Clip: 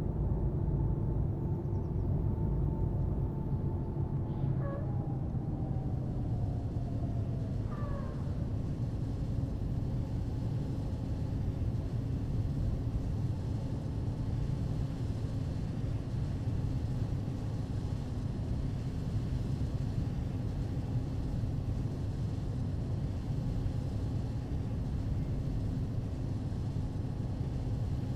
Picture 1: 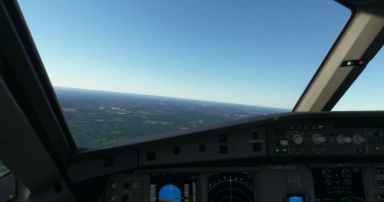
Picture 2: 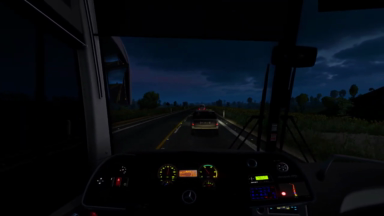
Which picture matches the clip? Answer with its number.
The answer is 2